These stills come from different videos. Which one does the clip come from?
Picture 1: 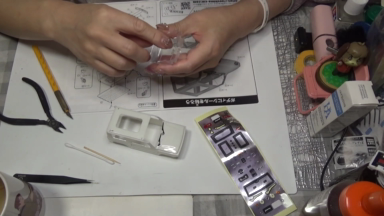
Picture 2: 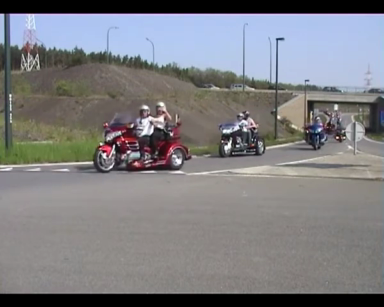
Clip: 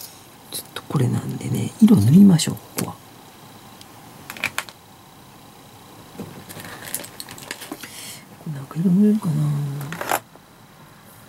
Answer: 1